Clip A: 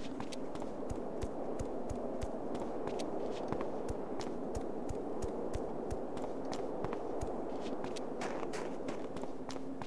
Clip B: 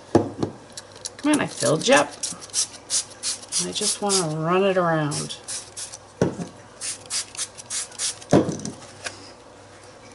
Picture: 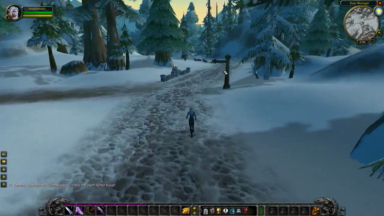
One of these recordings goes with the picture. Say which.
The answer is A